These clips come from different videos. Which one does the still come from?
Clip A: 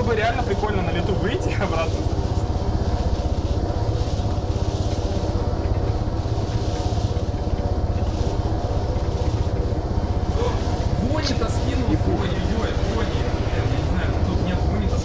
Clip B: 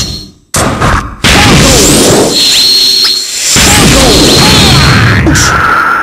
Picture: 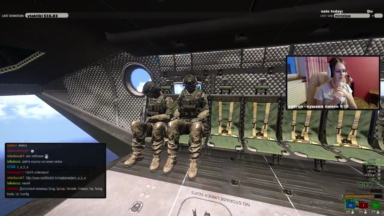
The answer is A